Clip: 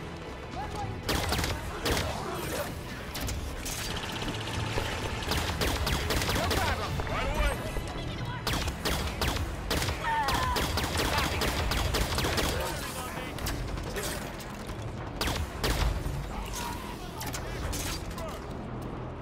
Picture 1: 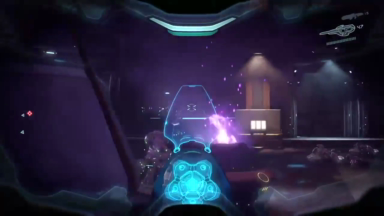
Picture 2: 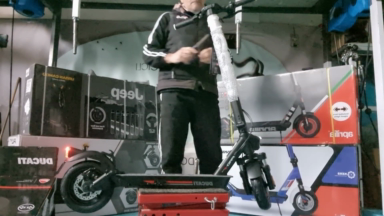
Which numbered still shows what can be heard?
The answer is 1